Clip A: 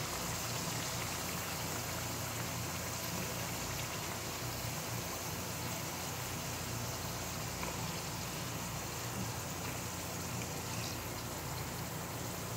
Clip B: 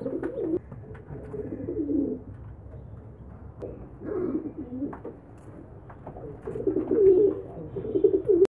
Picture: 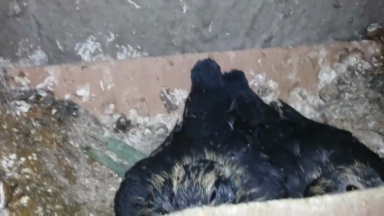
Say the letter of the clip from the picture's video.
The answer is B